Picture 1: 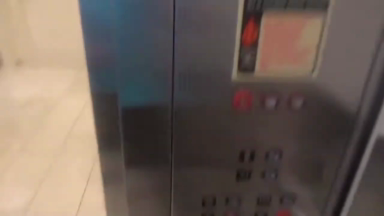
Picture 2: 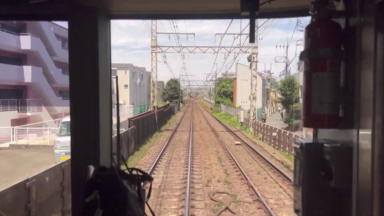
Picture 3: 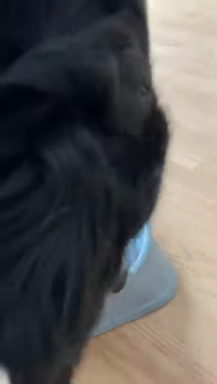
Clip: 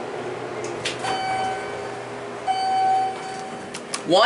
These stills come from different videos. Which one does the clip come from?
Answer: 1